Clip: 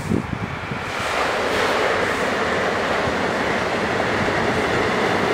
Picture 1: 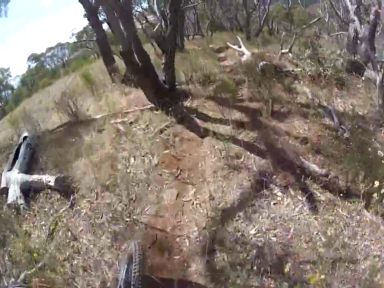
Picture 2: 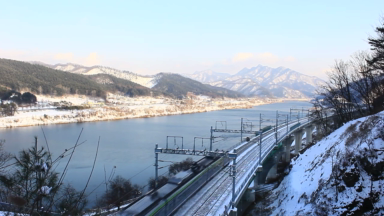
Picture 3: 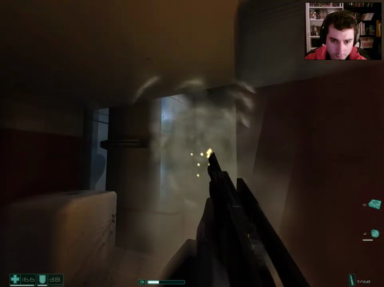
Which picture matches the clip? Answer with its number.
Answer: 2